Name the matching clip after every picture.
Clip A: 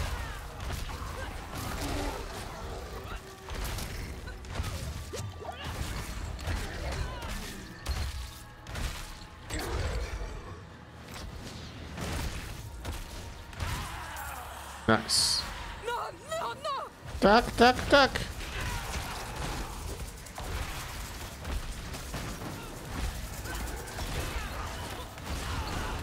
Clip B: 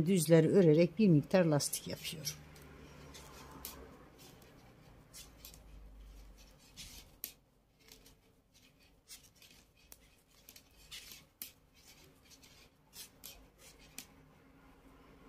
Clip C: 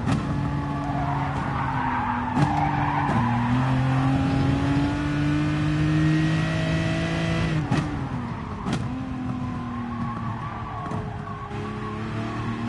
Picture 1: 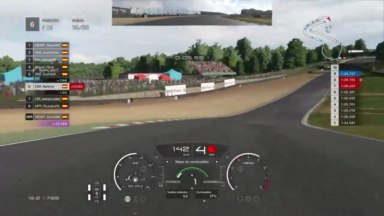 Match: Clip C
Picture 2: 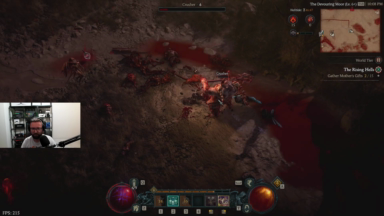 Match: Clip A